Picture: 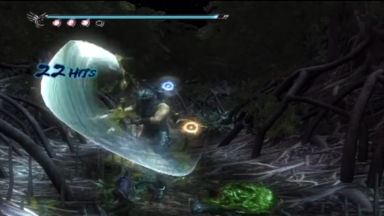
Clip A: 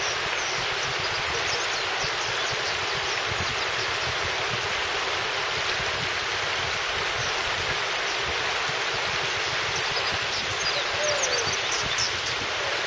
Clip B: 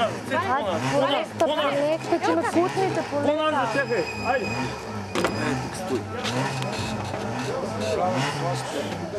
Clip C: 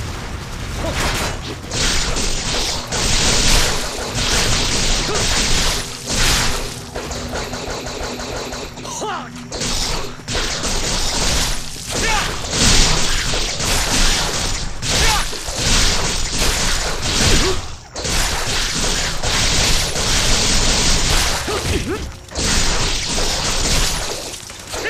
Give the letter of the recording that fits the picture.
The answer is C